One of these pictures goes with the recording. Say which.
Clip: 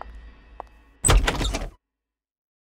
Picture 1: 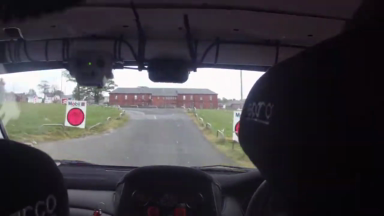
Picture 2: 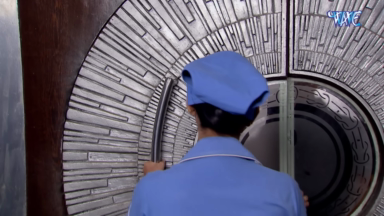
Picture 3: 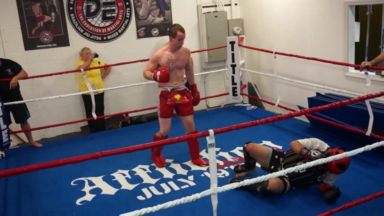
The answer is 2